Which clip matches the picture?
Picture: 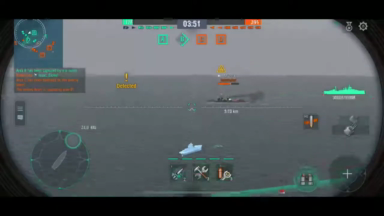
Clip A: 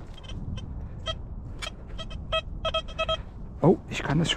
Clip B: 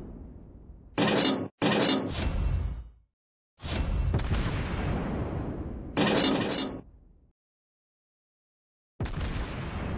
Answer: B